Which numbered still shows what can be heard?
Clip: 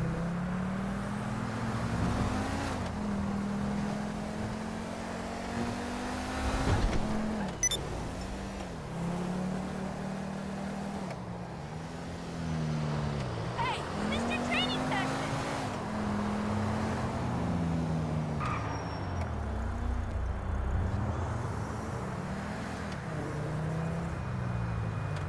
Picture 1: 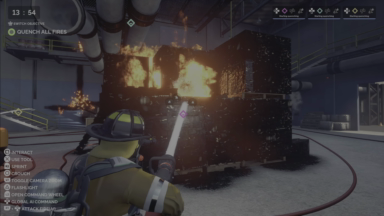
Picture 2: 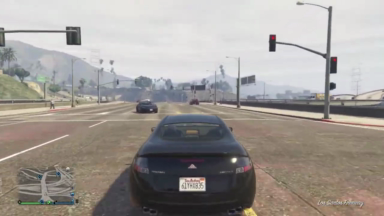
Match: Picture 2